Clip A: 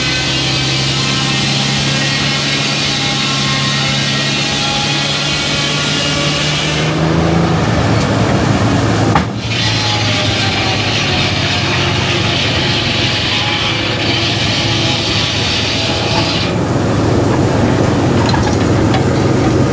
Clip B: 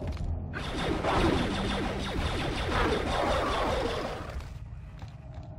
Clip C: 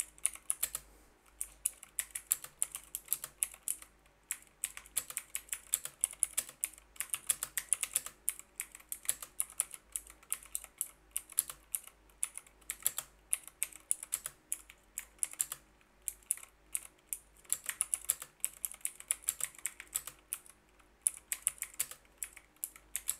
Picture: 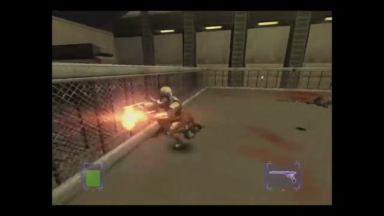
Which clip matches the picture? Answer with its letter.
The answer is B